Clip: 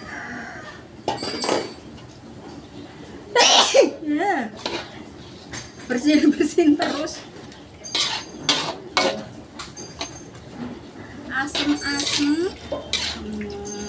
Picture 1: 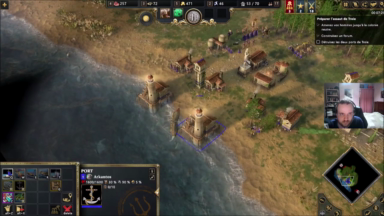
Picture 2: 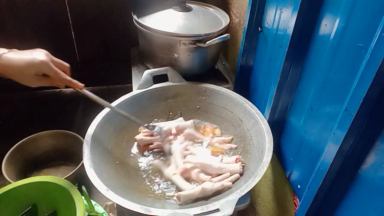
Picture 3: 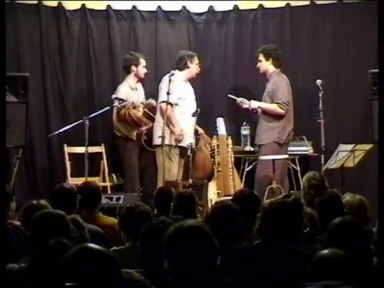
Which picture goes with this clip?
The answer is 2